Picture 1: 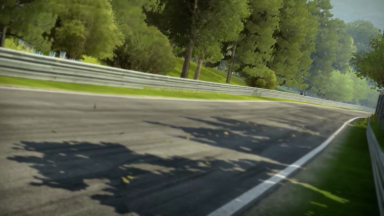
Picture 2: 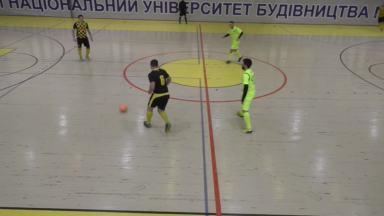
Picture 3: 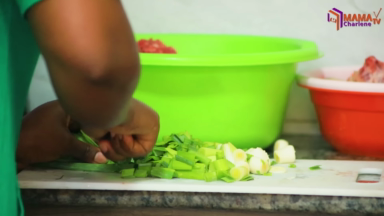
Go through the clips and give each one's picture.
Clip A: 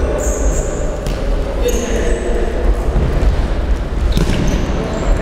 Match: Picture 2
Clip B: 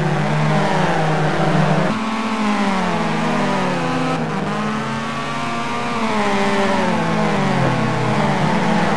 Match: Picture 1